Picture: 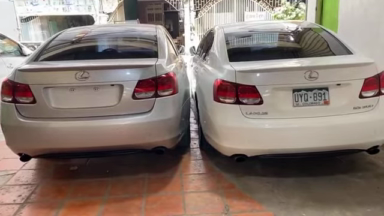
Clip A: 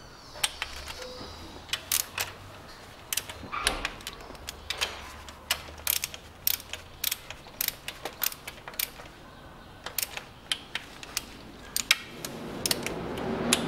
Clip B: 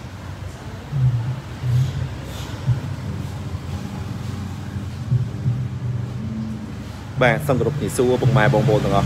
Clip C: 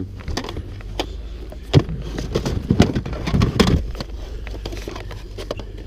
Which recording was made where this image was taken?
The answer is B